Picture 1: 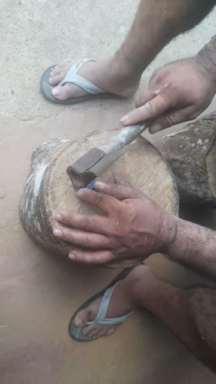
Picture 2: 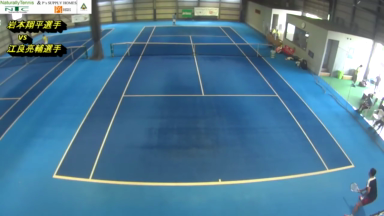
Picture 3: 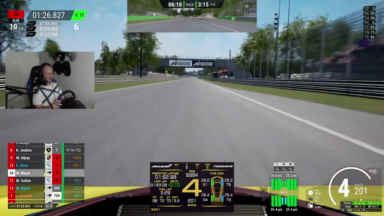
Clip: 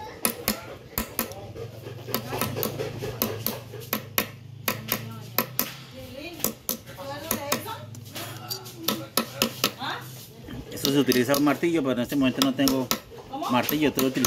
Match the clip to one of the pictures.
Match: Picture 1